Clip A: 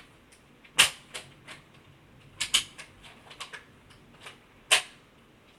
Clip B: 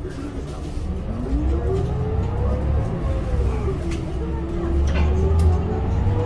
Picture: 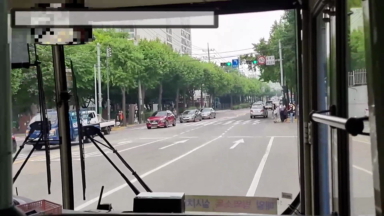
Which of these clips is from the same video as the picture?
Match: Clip B